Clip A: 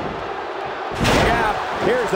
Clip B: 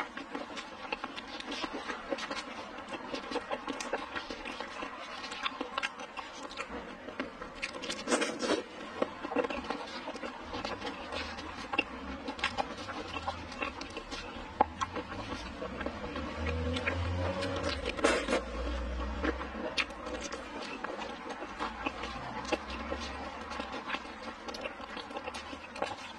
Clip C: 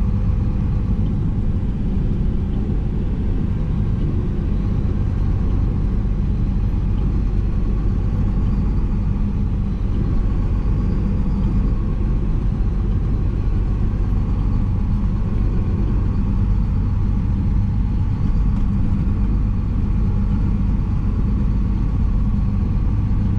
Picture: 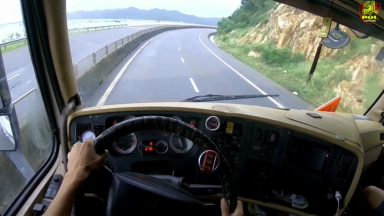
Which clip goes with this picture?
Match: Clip C